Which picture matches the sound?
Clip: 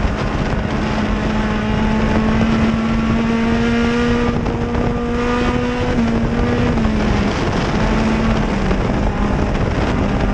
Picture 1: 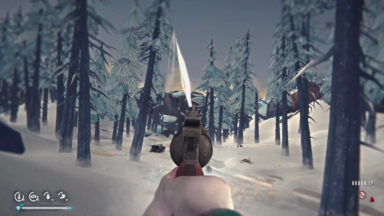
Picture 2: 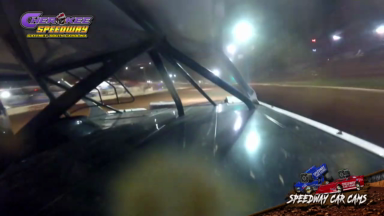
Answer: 2